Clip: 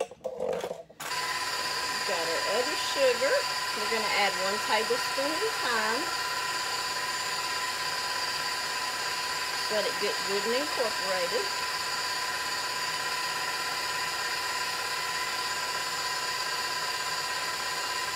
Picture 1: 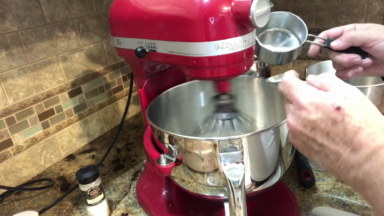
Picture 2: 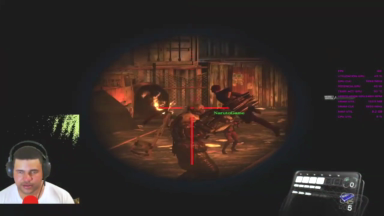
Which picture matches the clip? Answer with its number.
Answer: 1